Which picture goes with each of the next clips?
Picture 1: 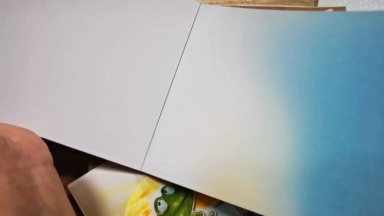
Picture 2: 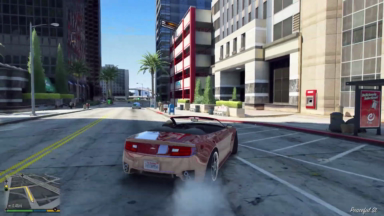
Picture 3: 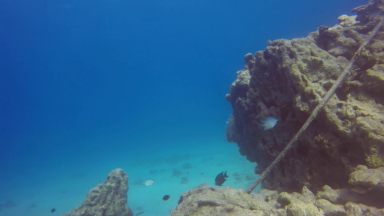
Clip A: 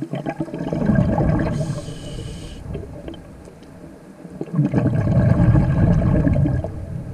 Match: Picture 3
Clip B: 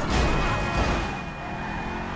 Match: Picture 2